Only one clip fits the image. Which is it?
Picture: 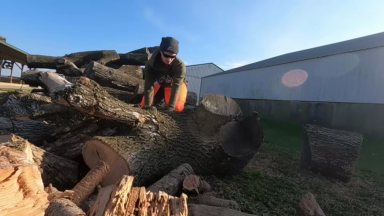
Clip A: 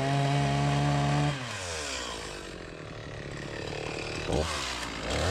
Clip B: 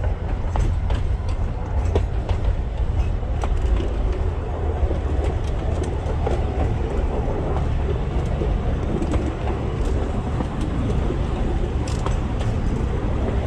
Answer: A